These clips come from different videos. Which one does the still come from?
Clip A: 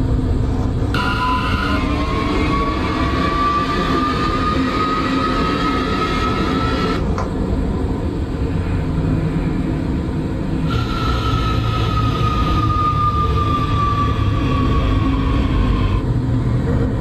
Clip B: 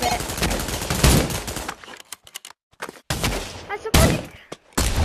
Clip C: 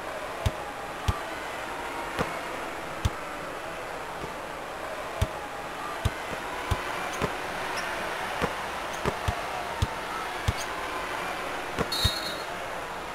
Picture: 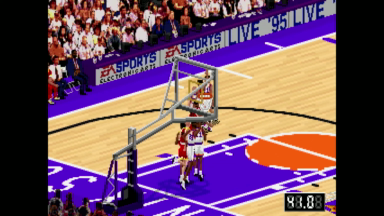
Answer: C